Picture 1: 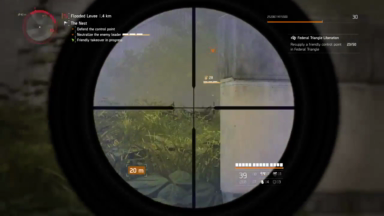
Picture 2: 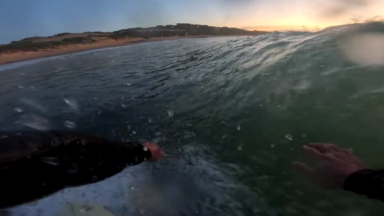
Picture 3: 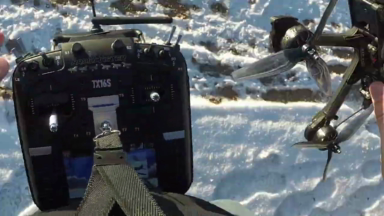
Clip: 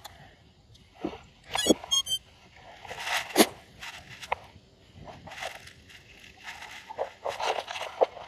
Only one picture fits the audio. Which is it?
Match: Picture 3